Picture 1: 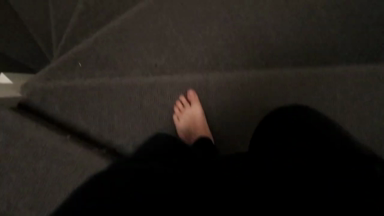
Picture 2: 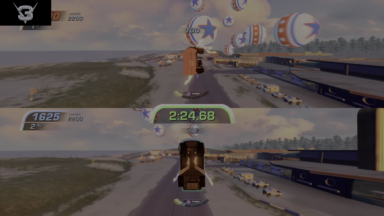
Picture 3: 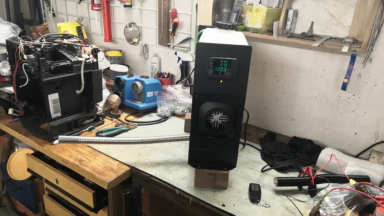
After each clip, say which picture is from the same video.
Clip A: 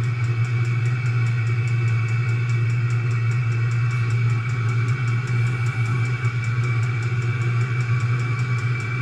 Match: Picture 3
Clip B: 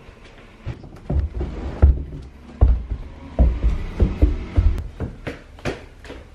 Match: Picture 1